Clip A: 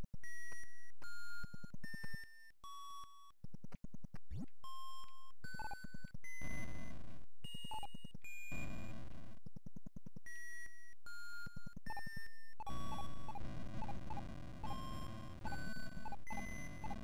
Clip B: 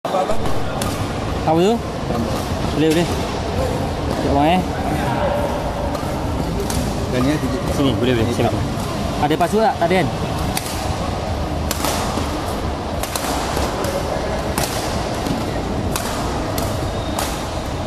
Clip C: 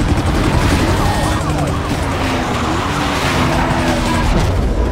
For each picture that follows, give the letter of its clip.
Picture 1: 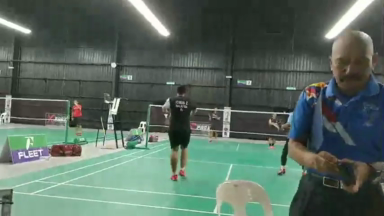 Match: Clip B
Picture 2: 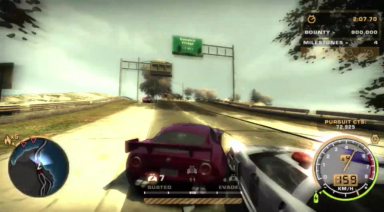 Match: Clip C